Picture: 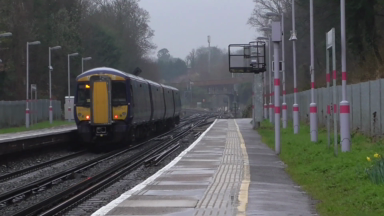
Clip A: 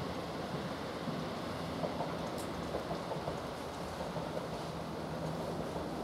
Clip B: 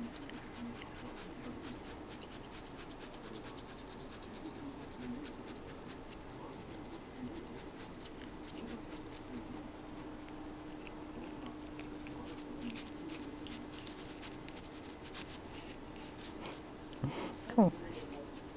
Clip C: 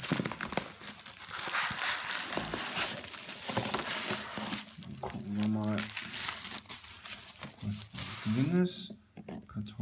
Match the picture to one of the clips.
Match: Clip A